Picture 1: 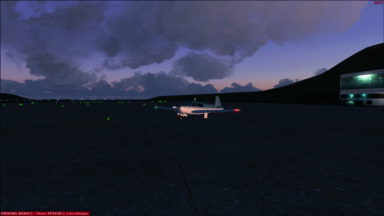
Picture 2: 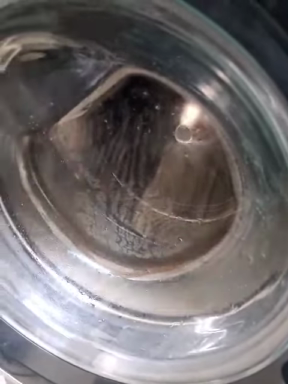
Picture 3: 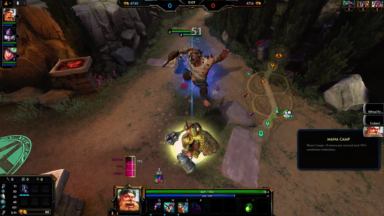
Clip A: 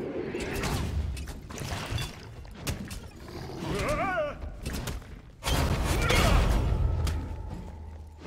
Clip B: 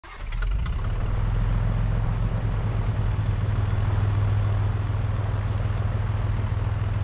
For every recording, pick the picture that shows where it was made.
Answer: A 3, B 1